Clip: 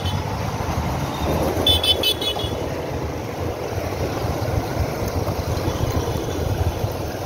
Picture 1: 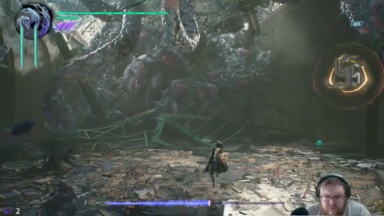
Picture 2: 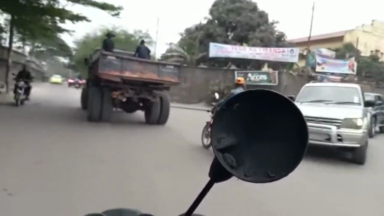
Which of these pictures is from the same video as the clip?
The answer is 2